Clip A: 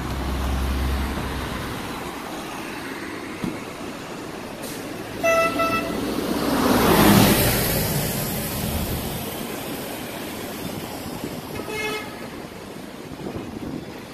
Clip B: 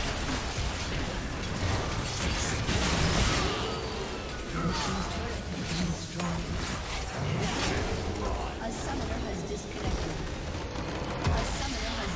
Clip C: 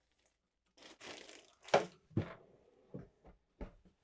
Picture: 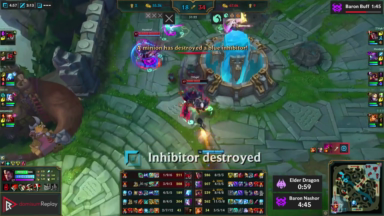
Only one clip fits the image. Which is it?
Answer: B